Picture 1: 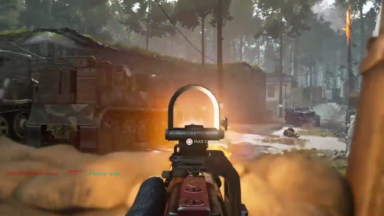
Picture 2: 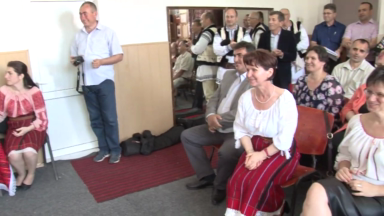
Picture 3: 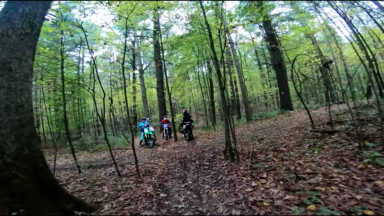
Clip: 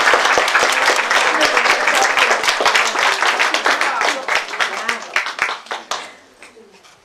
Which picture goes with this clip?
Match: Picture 2